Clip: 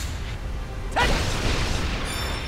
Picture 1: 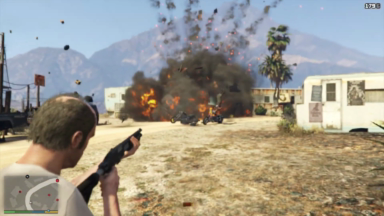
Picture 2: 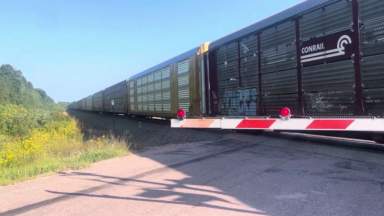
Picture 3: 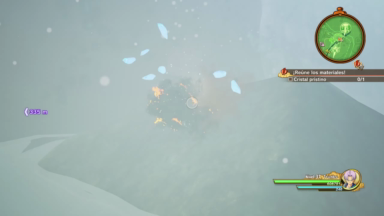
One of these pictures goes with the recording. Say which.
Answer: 3